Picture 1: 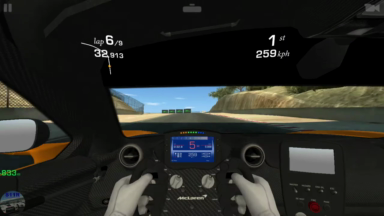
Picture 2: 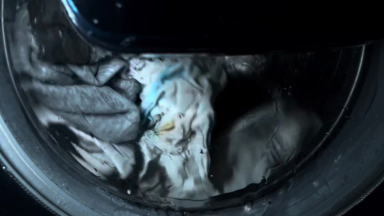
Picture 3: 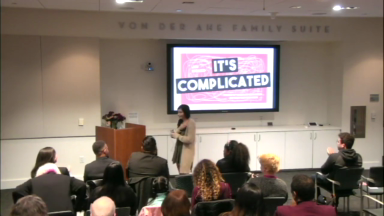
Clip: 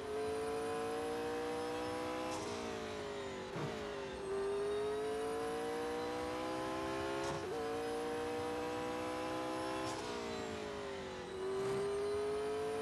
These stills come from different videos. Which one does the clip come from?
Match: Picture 1